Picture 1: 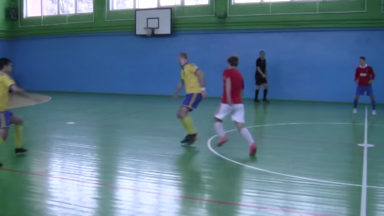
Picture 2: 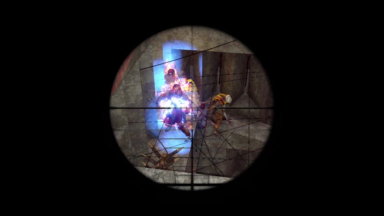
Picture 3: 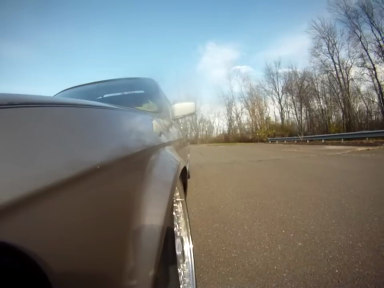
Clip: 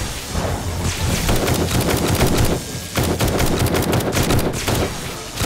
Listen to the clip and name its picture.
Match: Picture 2